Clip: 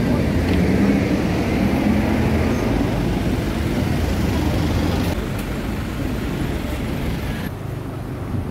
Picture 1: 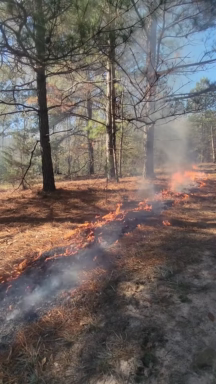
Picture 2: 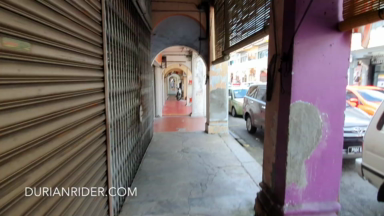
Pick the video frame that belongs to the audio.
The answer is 2